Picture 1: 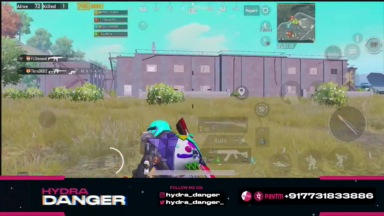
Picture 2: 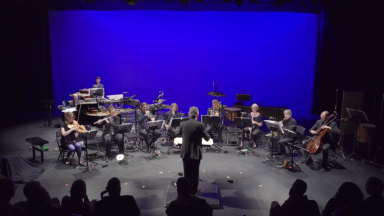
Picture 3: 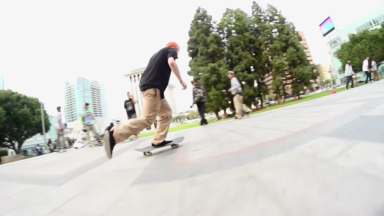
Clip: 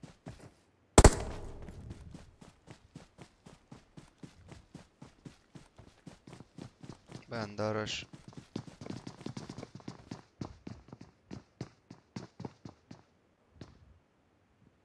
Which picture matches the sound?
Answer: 1